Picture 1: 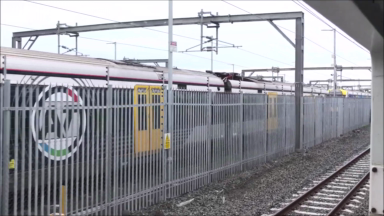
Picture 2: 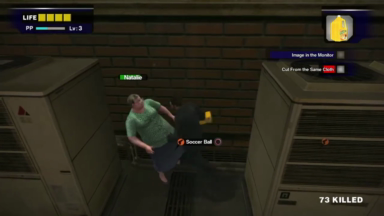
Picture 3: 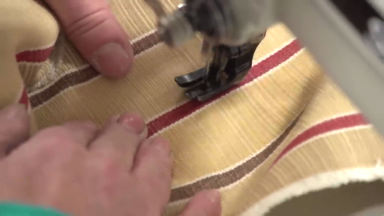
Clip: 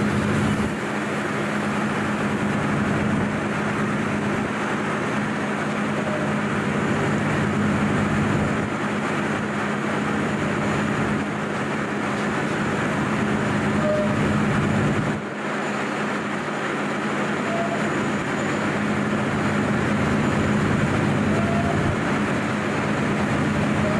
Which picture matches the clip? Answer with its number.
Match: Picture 1